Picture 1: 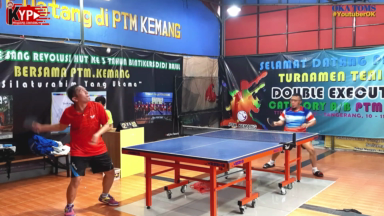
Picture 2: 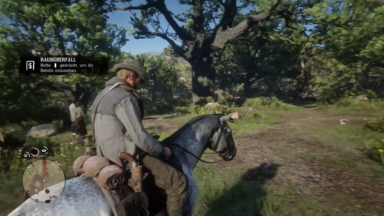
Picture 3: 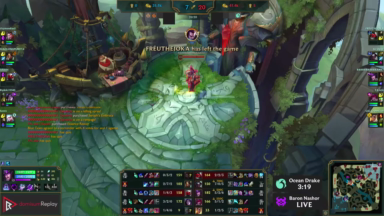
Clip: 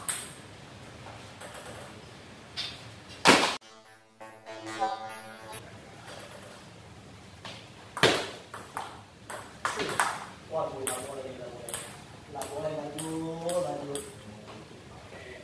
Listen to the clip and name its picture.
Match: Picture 1